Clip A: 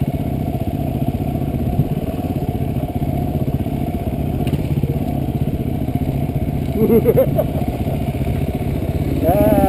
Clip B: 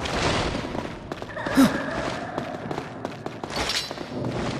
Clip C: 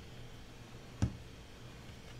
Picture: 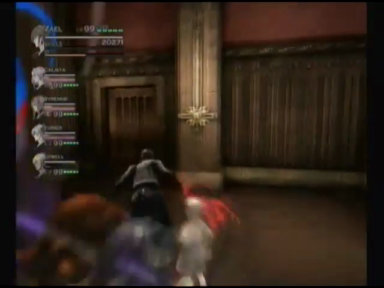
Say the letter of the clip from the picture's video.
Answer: B